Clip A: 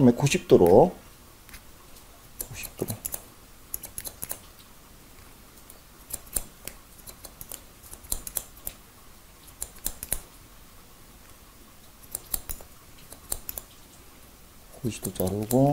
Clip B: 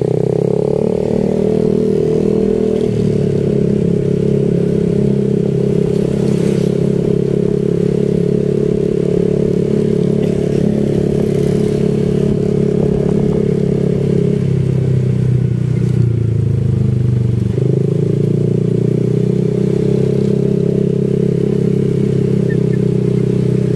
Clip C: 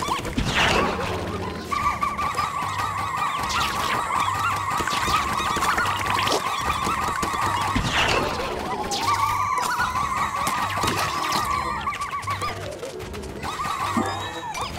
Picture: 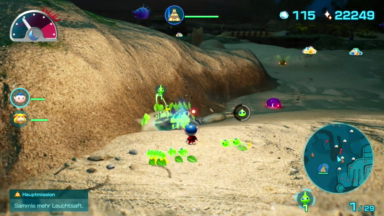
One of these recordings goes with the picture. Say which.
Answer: C